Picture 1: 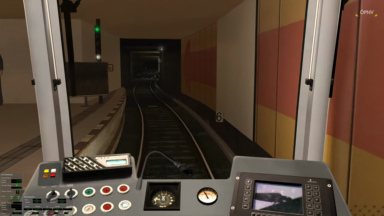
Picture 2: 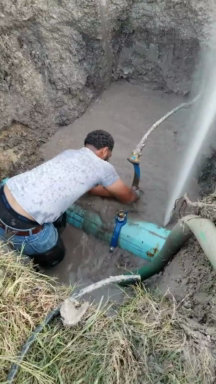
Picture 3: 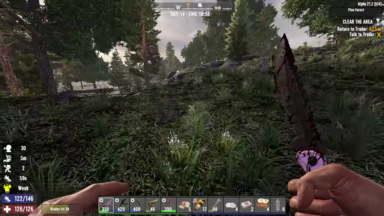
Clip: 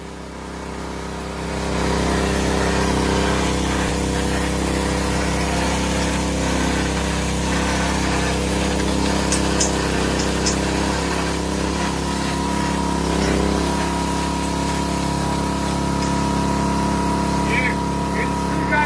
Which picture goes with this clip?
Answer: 2